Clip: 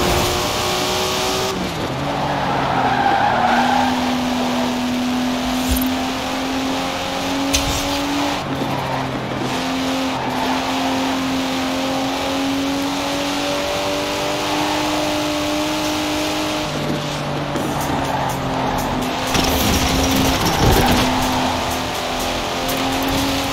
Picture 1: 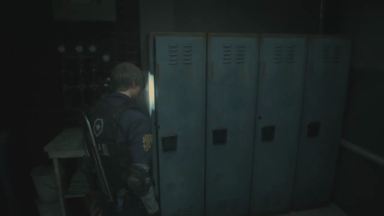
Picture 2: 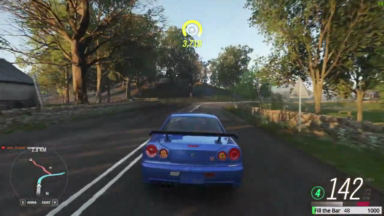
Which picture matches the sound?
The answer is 2